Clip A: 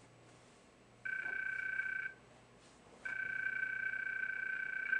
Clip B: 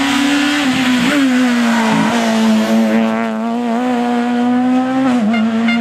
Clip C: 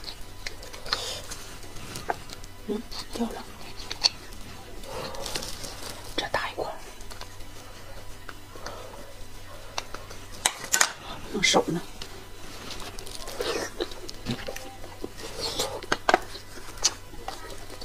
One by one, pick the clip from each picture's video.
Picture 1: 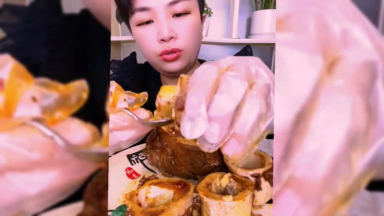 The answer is C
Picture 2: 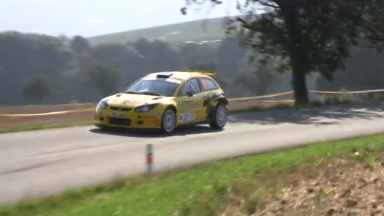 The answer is B